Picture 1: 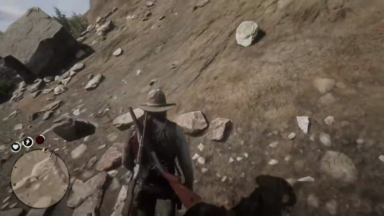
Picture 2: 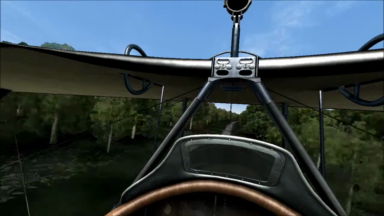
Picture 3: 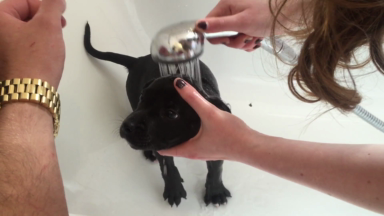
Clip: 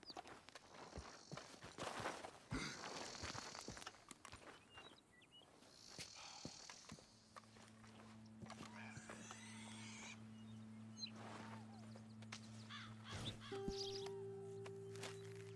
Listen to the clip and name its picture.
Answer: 1